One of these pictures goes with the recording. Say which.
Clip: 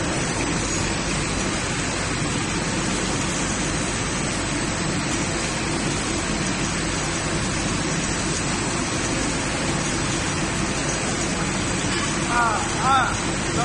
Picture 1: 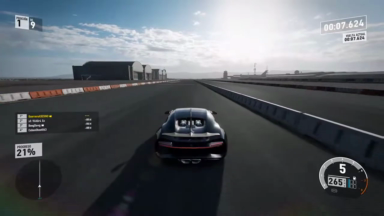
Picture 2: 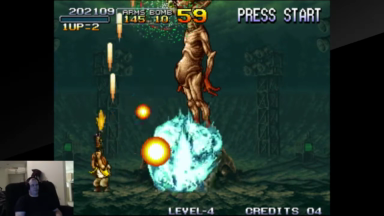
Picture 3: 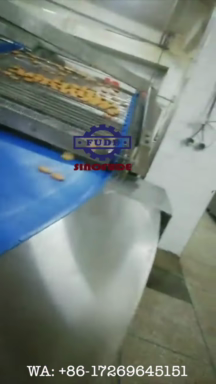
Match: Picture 3